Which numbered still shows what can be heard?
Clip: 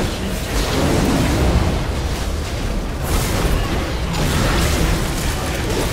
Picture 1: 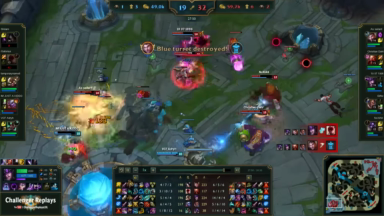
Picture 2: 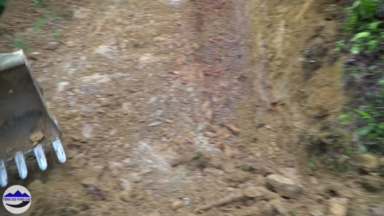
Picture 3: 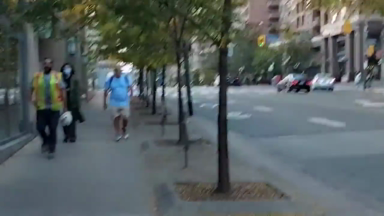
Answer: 1